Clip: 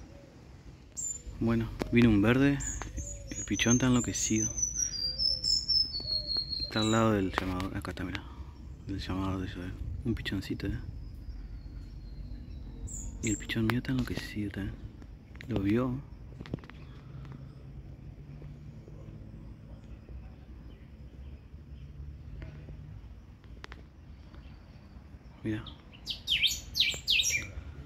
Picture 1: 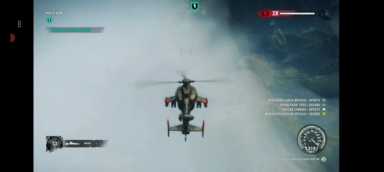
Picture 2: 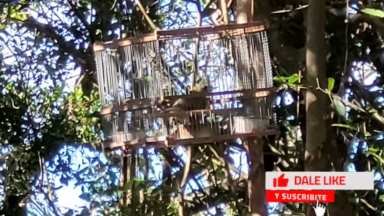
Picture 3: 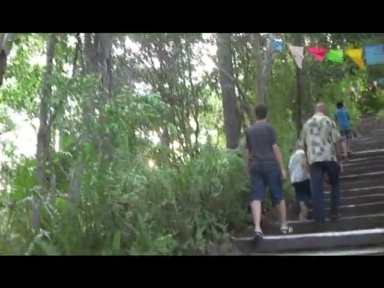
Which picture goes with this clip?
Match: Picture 2